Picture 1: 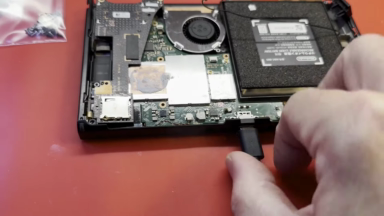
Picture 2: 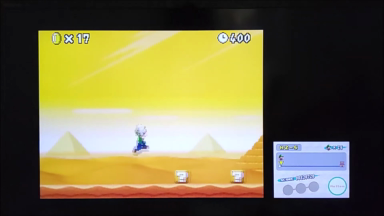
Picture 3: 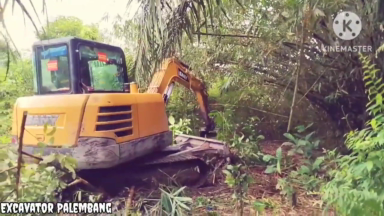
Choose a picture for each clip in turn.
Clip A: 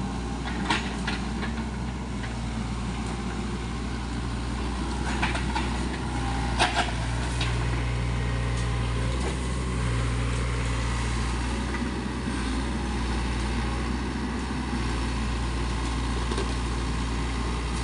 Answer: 3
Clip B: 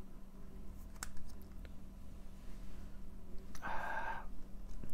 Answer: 1